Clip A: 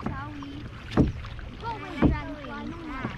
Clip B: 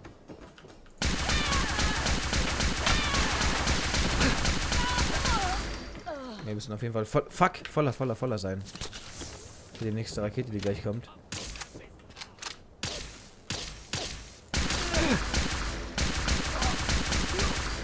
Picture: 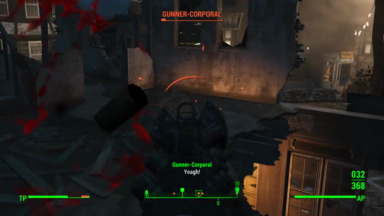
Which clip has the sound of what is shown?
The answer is B